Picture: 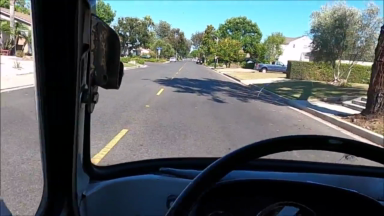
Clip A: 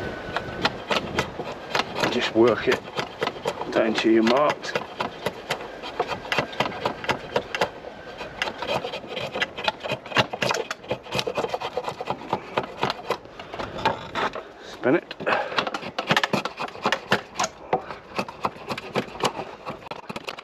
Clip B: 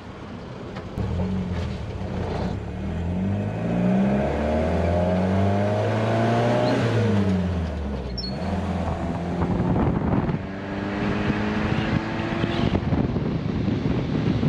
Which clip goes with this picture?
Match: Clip B